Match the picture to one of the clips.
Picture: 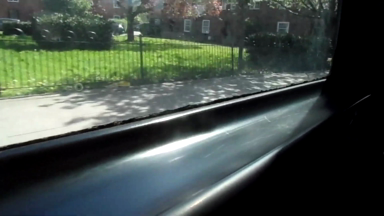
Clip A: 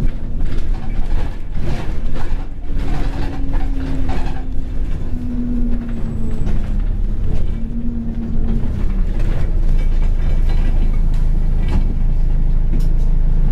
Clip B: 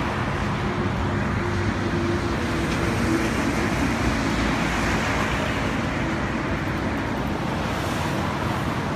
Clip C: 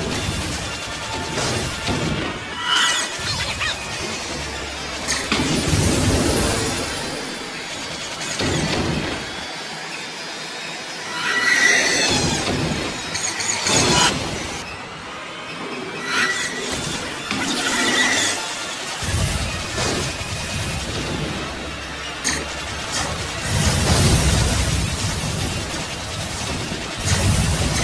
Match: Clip A